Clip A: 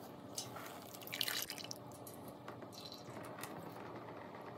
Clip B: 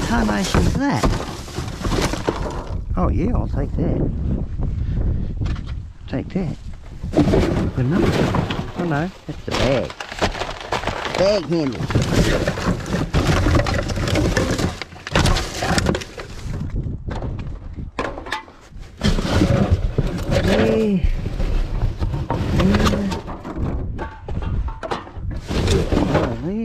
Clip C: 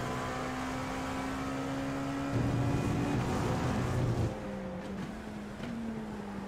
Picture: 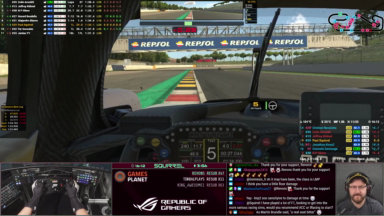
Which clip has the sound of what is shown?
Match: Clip C